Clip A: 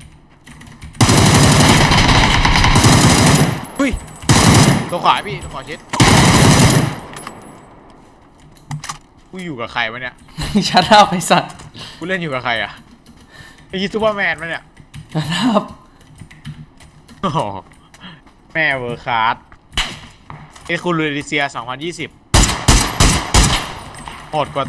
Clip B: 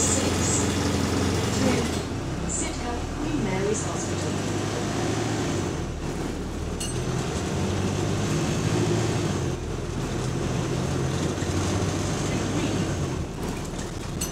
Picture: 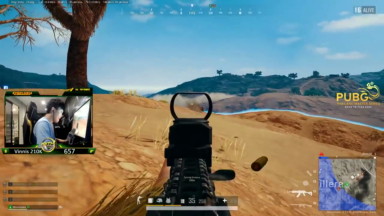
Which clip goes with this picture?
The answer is A